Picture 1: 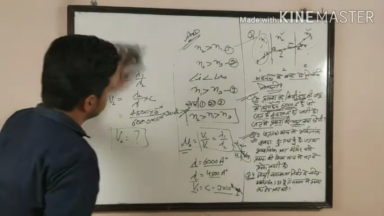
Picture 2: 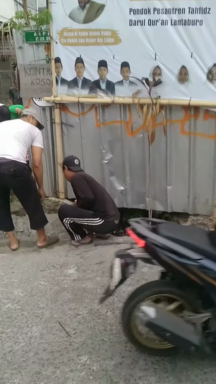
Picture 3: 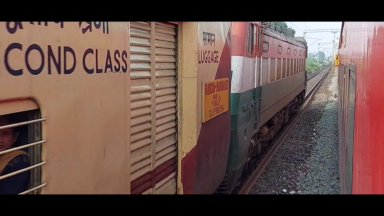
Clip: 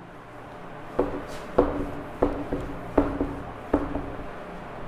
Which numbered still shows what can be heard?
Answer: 1